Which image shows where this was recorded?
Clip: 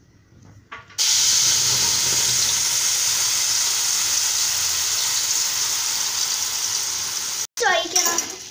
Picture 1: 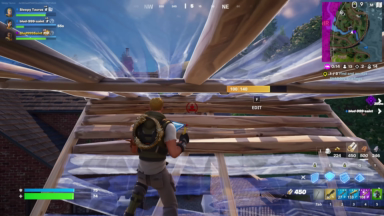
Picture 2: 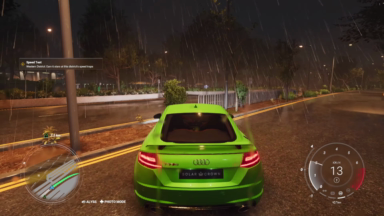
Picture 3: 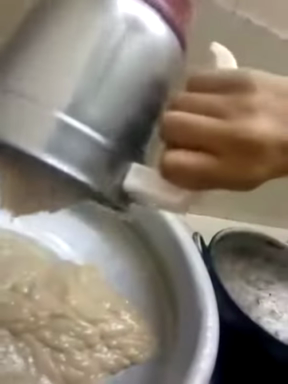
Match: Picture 3